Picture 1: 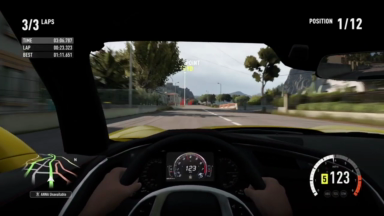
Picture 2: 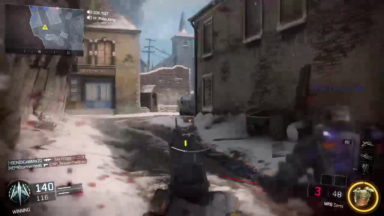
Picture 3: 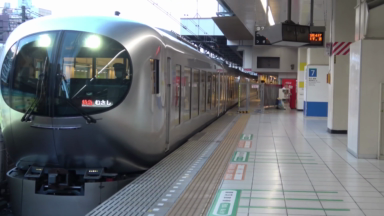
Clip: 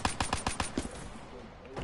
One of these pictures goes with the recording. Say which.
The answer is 2